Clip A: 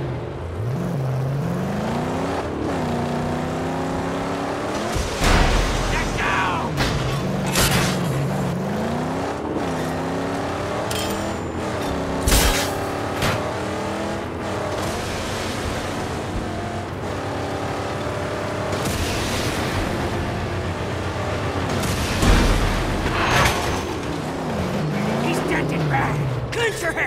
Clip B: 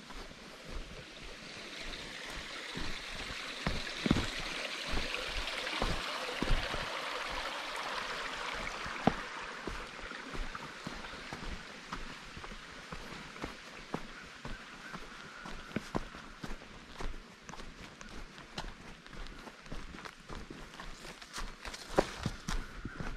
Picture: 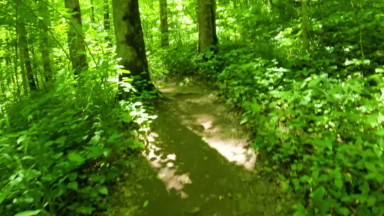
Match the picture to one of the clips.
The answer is B